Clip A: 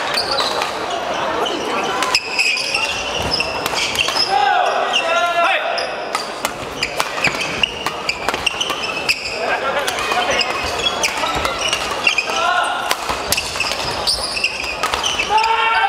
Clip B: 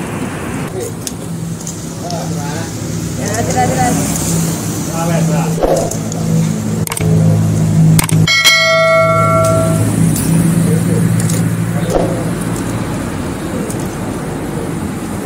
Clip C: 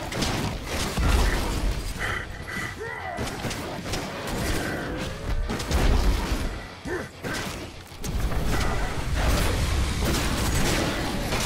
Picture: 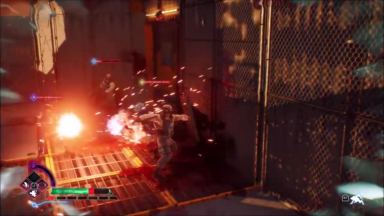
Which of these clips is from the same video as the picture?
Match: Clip C